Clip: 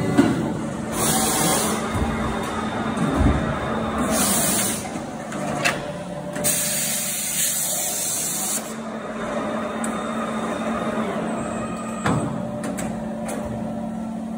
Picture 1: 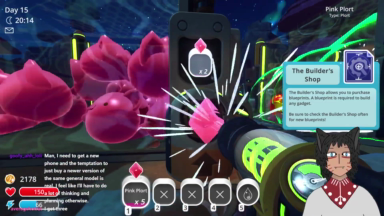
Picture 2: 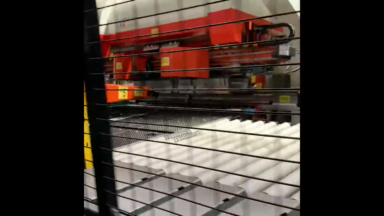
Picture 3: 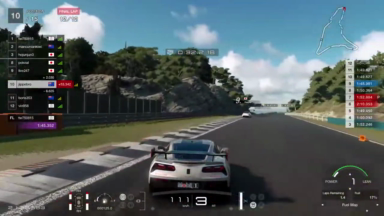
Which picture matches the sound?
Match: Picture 2